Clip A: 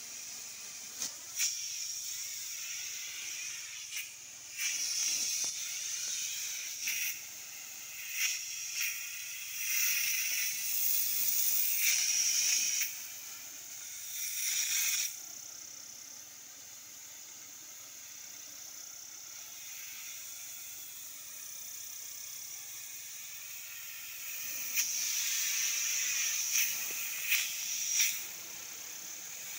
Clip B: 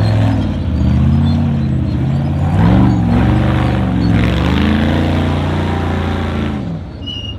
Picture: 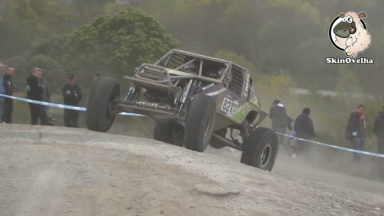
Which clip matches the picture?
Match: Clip B